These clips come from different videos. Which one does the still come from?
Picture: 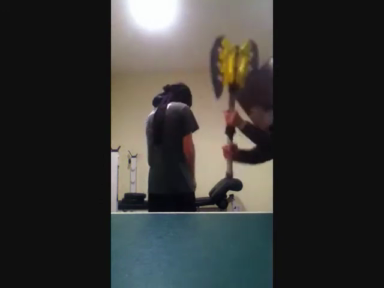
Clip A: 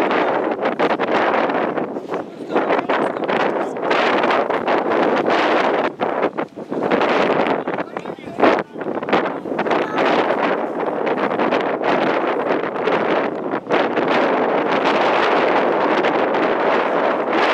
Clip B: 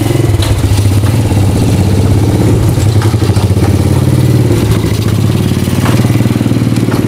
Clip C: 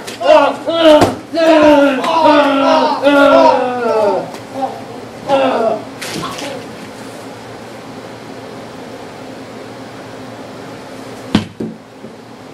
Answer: C